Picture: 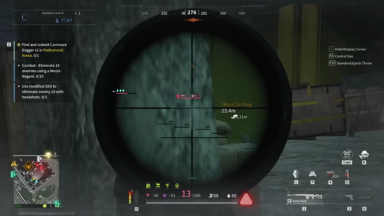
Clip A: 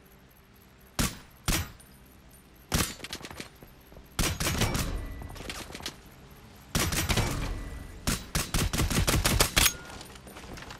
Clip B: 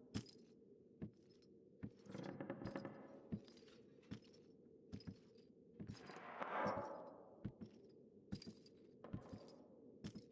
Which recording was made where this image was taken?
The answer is A